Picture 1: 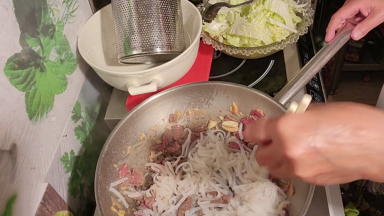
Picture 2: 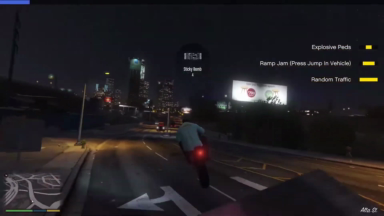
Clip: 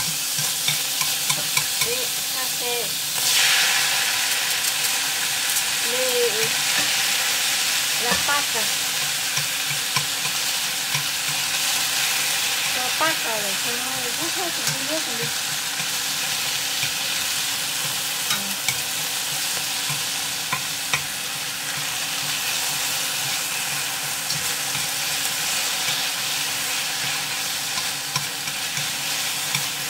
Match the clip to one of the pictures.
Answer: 1